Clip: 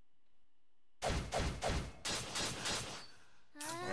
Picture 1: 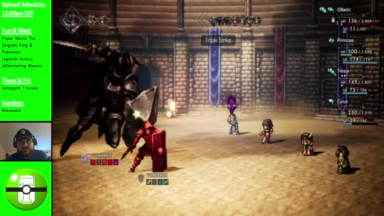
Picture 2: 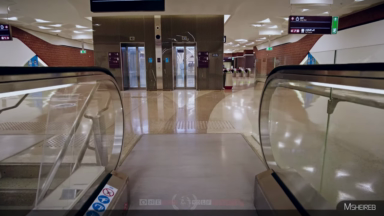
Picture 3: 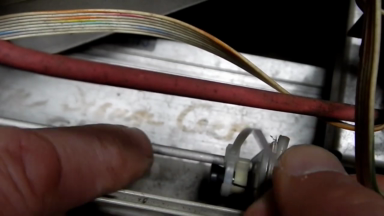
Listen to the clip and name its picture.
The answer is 1